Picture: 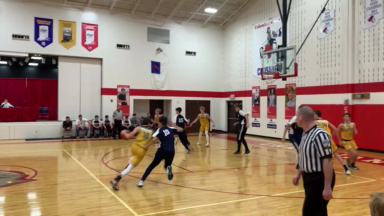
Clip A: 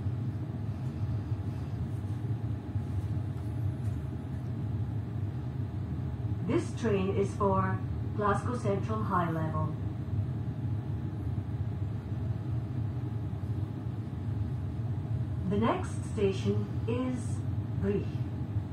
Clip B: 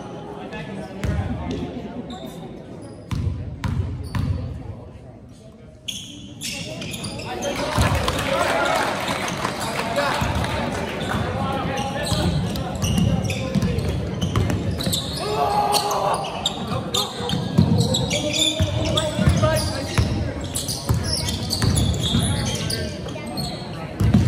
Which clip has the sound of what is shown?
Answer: B